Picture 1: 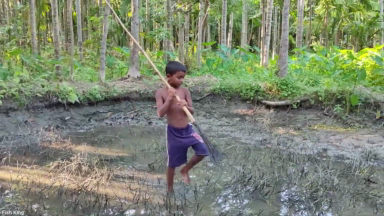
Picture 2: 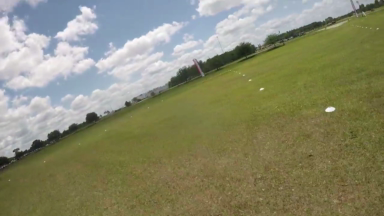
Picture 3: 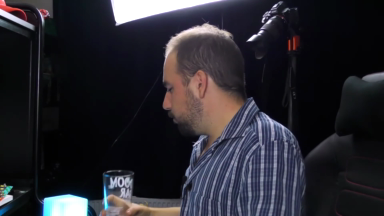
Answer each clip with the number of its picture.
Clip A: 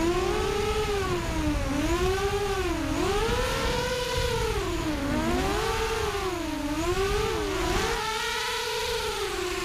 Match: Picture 2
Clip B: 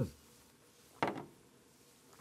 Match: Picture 3